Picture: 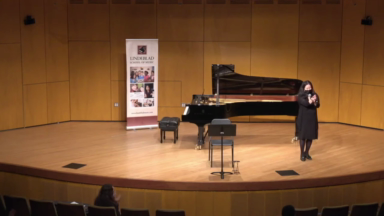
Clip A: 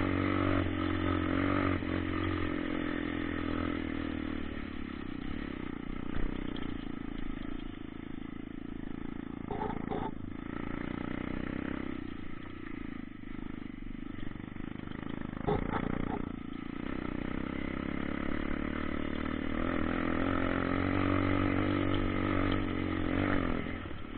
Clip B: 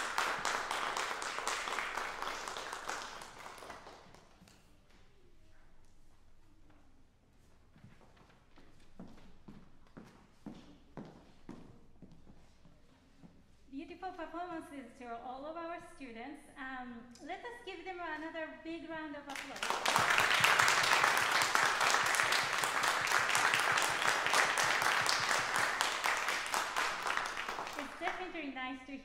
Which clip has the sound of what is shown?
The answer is B